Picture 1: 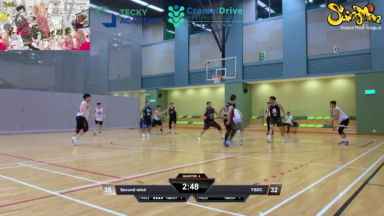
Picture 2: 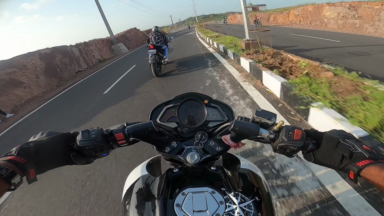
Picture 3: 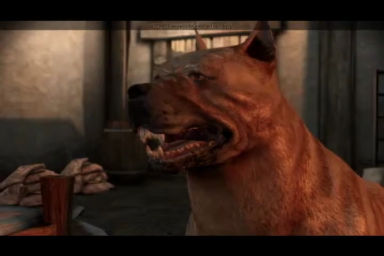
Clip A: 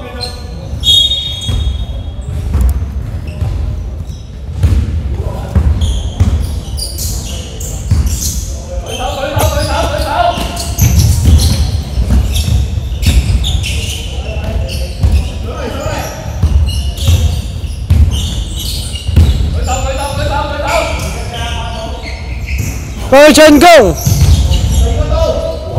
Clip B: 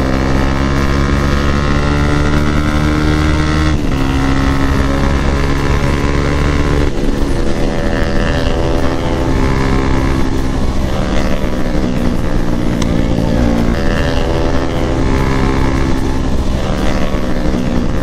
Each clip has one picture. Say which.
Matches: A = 1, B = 2